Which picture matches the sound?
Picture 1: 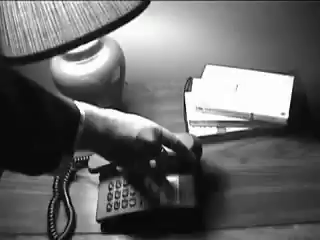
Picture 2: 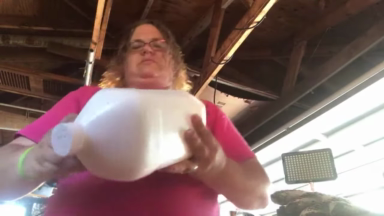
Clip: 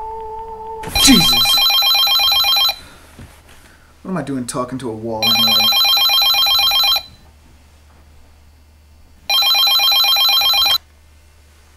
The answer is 1